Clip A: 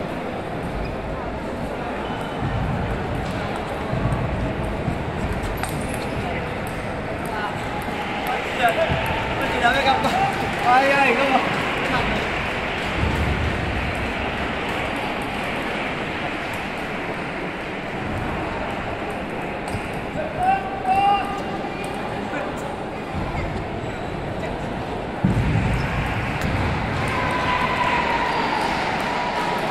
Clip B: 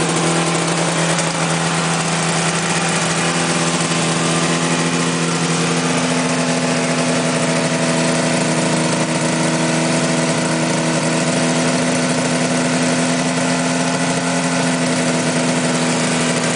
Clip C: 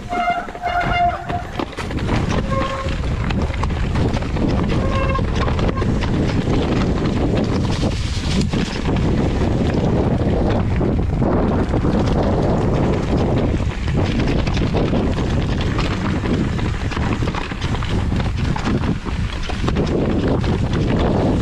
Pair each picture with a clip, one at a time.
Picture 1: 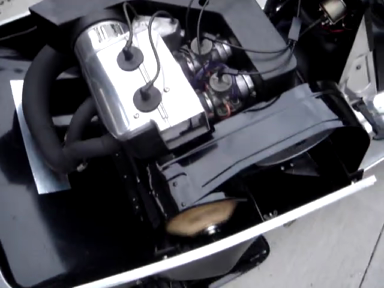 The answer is B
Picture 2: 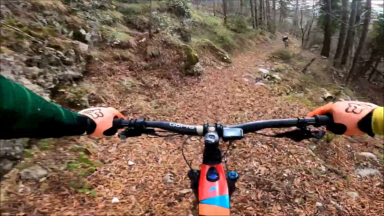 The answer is C